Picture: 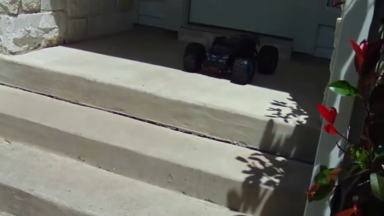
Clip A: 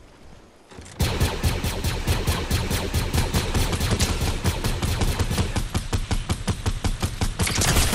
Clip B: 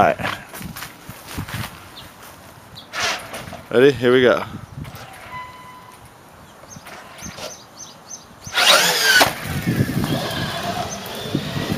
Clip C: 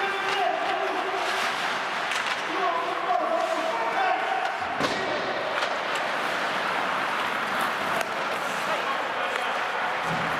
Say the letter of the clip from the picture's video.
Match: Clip B